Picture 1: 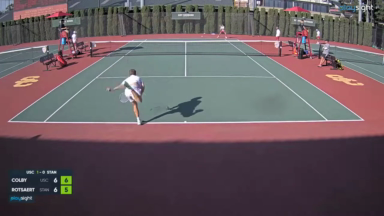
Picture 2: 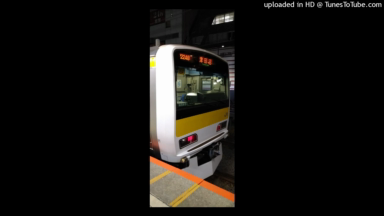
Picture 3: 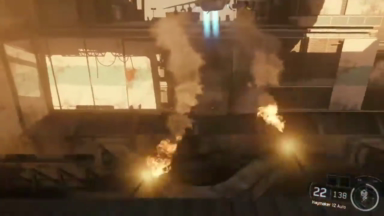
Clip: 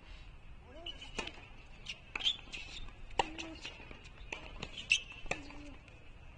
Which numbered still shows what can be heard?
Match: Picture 1